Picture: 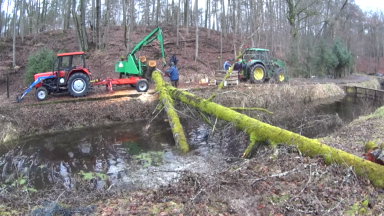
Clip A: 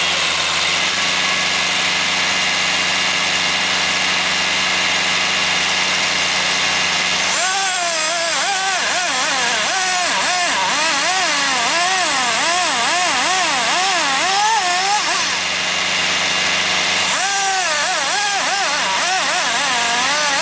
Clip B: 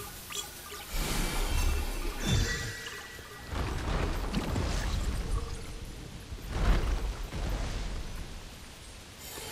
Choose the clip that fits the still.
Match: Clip A